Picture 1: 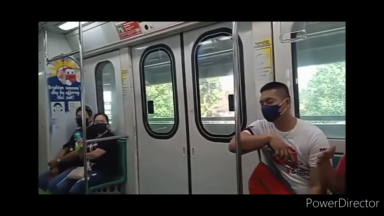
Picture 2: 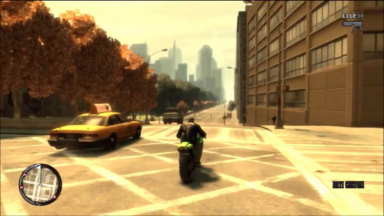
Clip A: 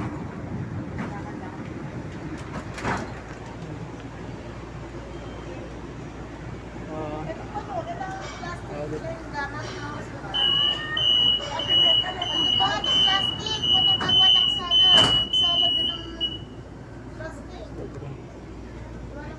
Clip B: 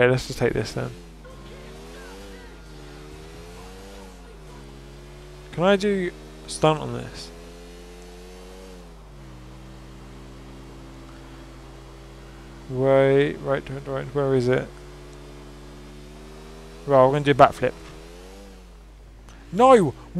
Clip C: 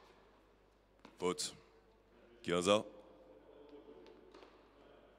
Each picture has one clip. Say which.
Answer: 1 A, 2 B